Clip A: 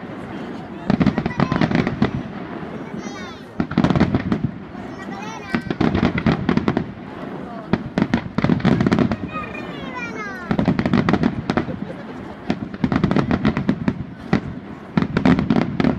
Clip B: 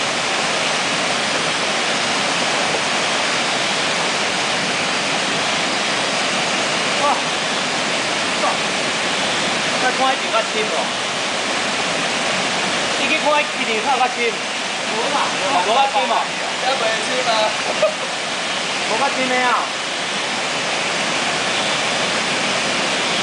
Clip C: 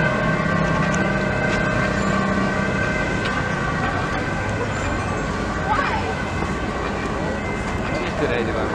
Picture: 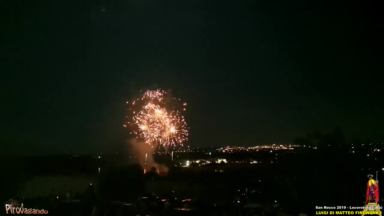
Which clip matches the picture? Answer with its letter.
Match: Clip A